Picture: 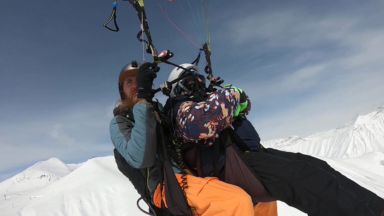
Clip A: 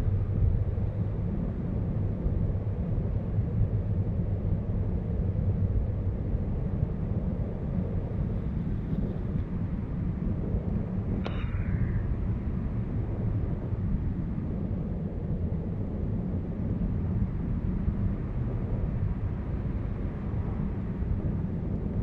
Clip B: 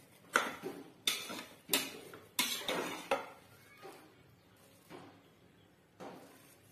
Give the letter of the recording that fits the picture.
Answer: A